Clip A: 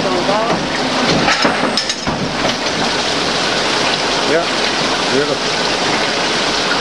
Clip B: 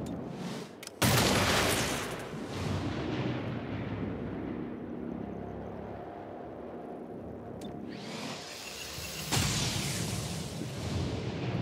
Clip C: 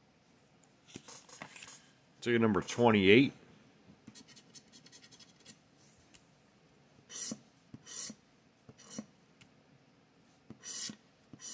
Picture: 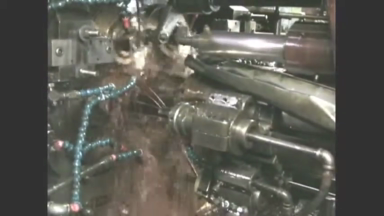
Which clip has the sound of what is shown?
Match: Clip A